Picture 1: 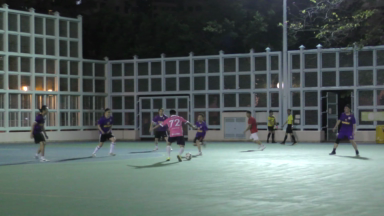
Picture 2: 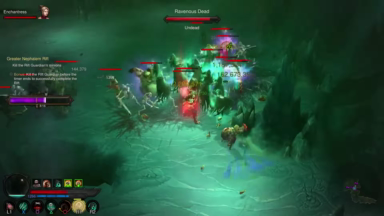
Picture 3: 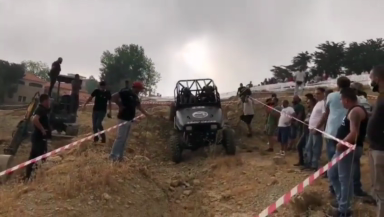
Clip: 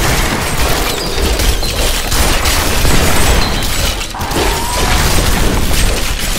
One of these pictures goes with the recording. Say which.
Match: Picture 2